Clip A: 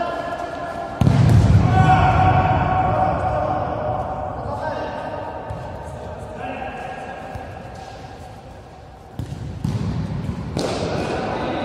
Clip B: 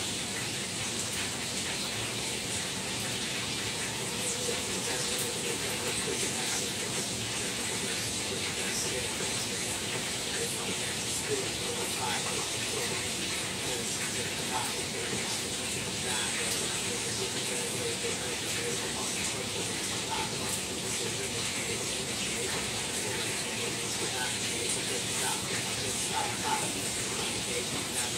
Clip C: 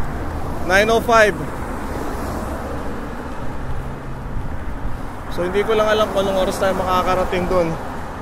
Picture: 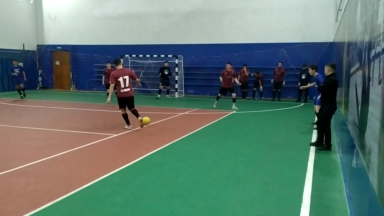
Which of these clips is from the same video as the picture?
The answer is A